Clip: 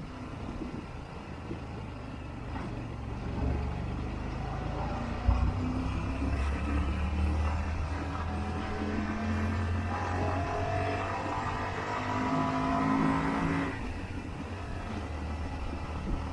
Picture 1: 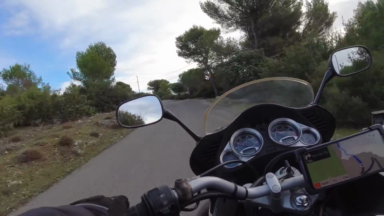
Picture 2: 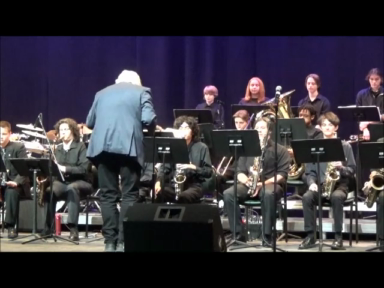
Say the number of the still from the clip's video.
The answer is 1